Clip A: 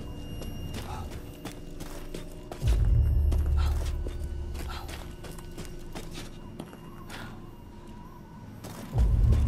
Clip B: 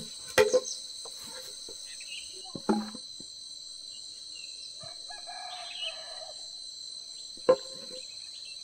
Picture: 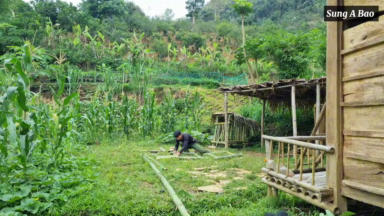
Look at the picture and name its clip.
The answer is B